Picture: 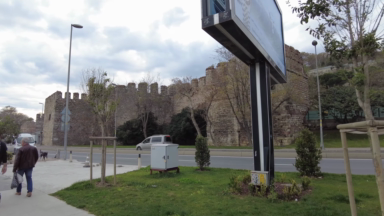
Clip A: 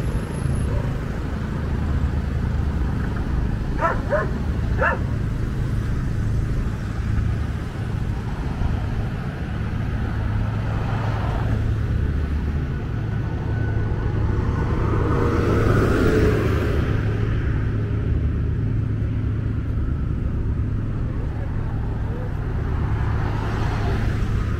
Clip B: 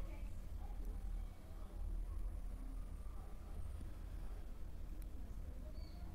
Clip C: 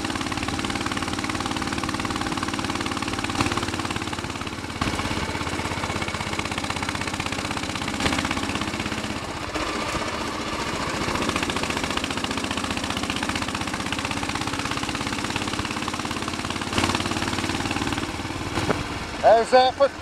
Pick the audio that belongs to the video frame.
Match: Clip A